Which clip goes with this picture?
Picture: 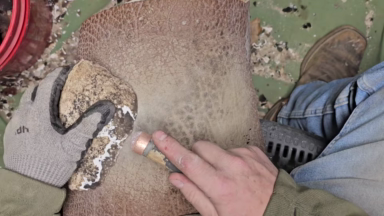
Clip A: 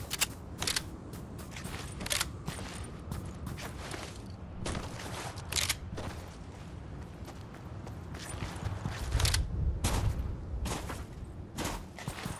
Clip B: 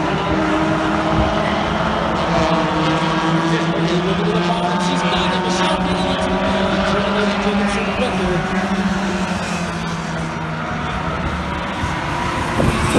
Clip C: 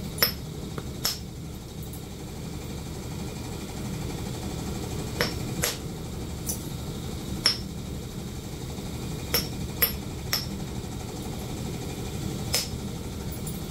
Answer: C